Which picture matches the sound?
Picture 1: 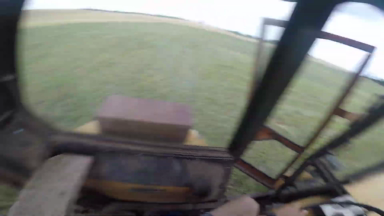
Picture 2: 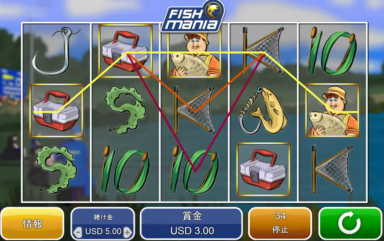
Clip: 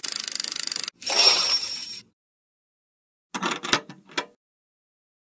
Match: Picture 2